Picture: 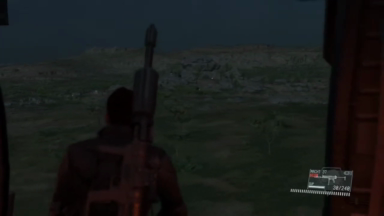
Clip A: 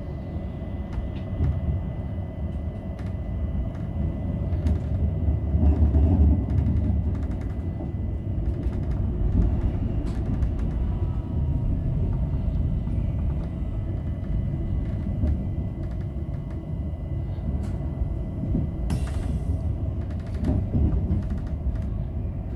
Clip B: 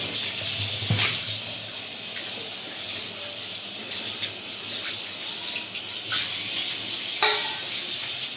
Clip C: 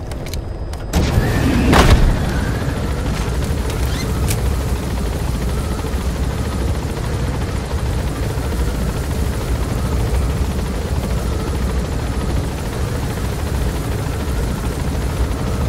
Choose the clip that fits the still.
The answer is C